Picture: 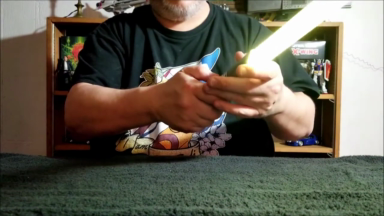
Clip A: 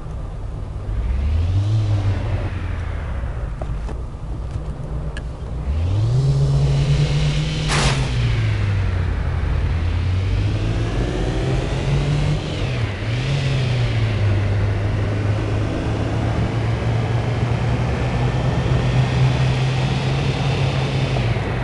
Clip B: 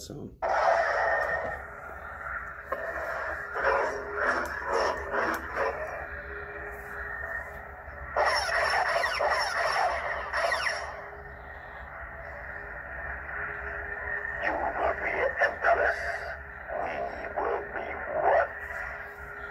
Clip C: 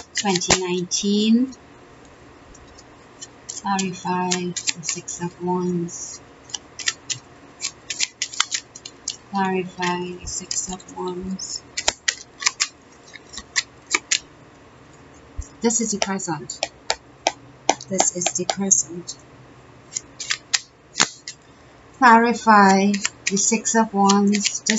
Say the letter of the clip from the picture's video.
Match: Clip B